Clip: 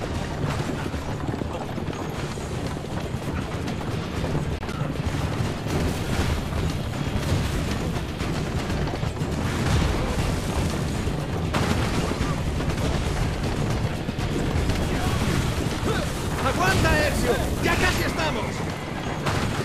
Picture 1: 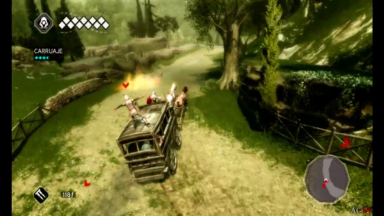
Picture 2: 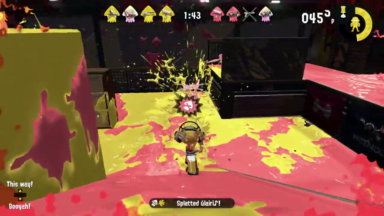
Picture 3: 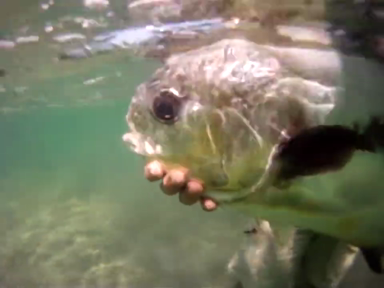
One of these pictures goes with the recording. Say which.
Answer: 1